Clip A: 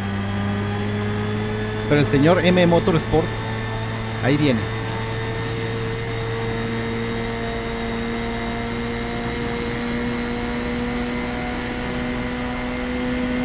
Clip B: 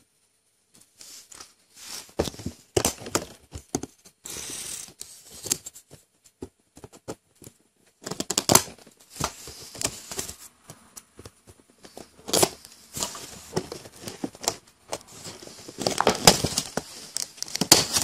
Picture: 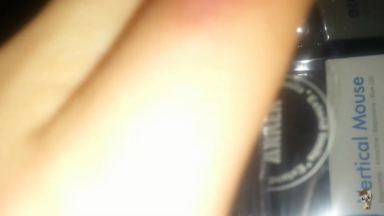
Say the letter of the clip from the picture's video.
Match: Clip B